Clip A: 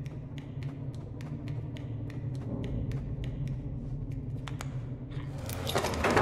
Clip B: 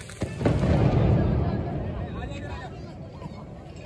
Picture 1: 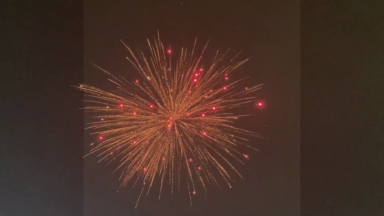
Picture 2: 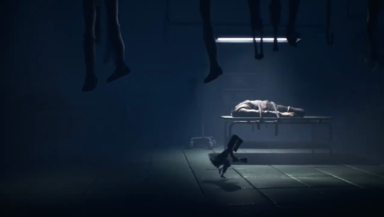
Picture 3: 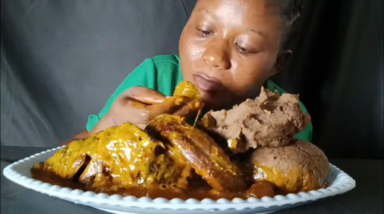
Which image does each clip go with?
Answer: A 2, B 1